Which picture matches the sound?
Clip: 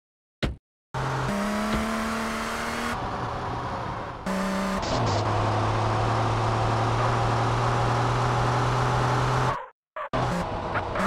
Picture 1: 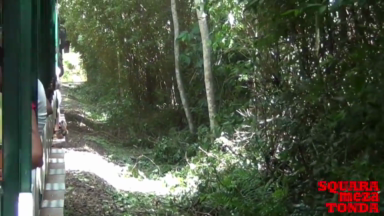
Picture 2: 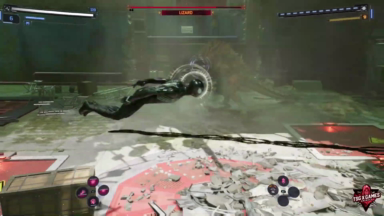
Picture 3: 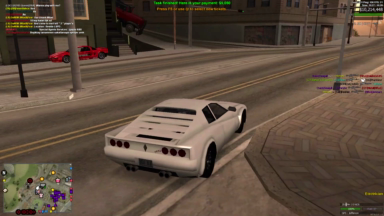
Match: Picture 3